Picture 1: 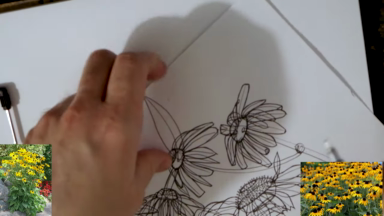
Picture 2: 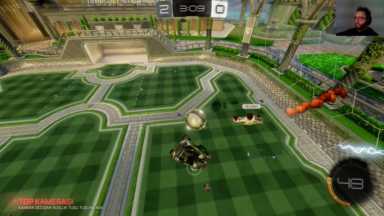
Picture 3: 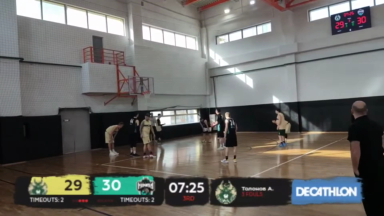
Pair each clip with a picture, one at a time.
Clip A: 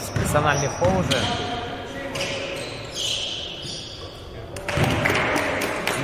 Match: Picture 3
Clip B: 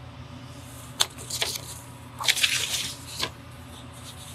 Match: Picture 1